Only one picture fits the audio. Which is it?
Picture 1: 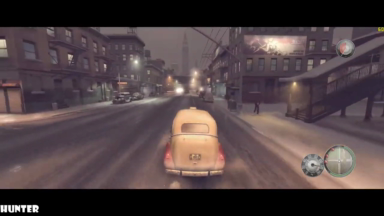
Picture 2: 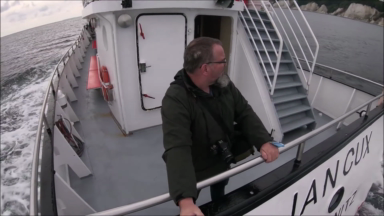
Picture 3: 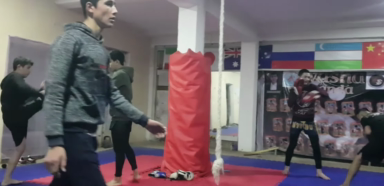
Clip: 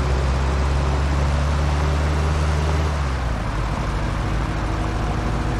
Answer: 1